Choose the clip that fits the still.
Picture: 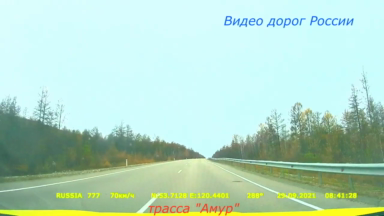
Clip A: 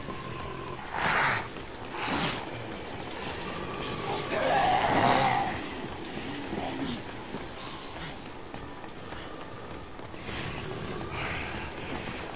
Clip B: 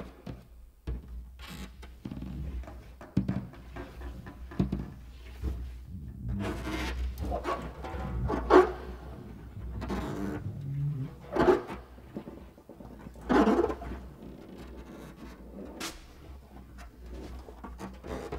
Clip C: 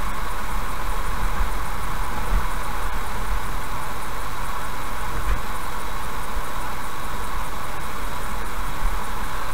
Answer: C